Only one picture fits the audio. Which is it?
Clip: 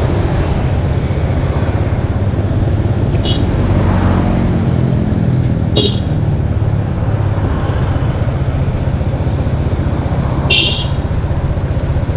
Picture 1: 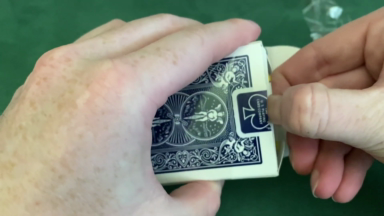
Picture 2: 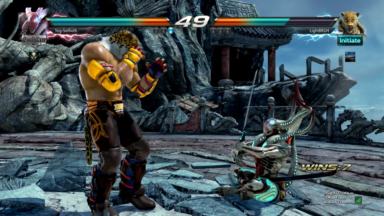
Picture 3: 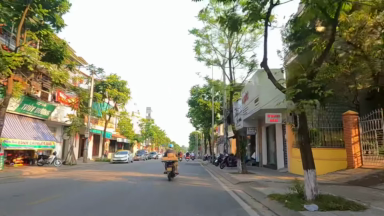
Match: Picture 3